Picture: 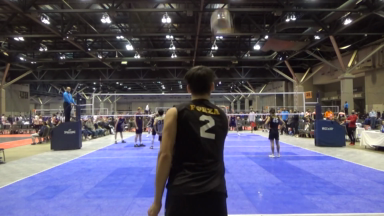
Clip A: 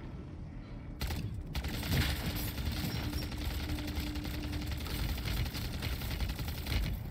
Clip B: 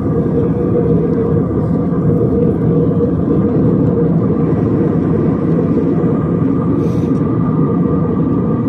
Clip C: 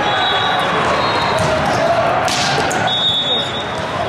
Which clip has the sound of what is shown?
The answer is C